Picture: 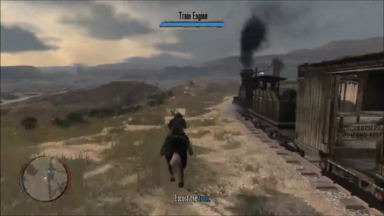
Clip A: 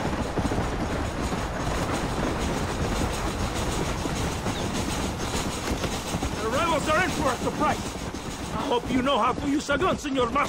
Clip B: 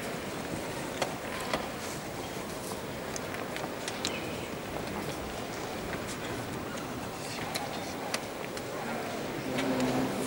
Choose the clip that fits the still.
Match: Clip A